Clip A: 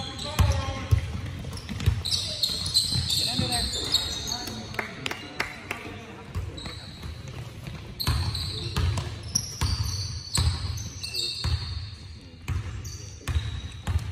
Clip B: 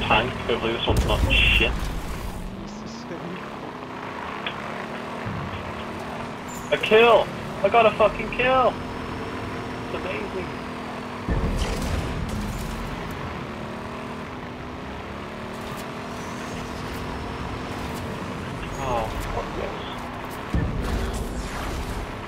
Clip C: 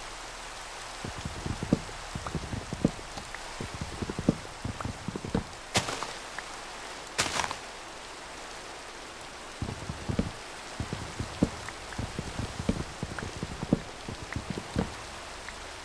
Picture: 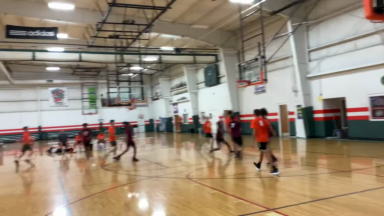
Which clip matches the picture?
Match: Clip A